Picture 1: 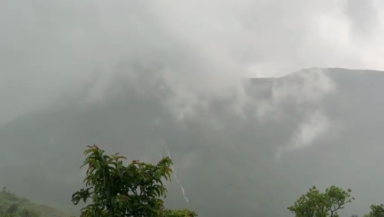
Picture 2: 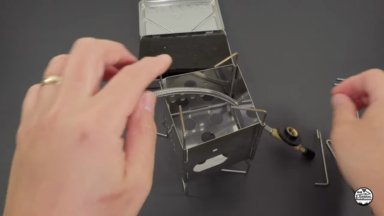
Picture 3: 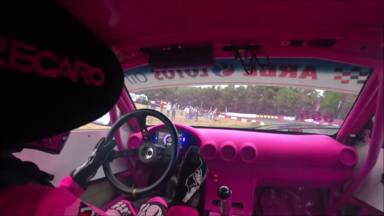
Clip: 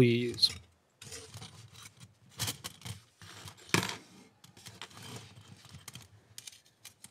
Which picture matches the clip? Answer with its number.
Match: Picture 2